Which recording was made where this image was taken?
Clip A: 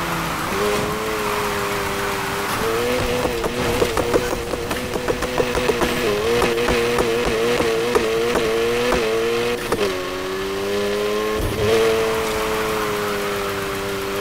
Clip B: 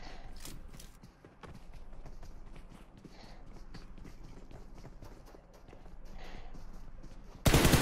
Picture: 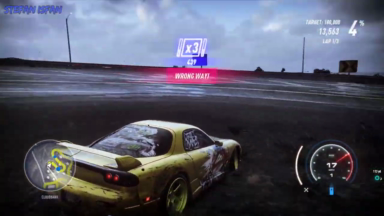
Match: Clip A